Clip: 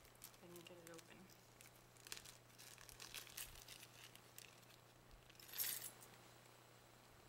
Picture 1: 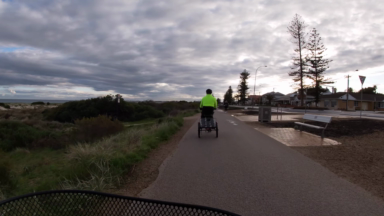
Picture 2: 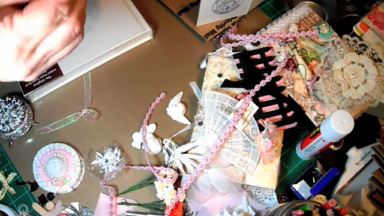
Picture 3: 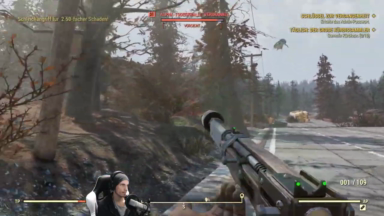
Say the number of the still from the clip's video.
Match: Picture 2